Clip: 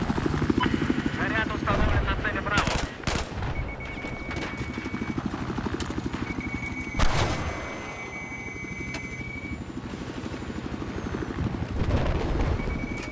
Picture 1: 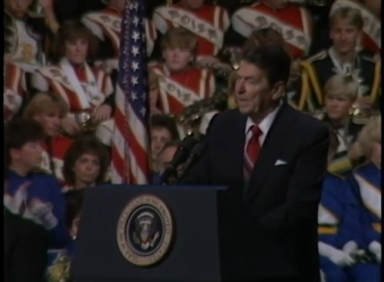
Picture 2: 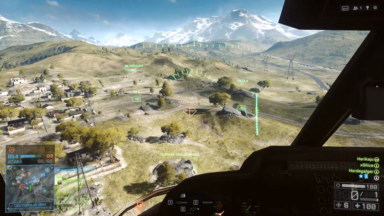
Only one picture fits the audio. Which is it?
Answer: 2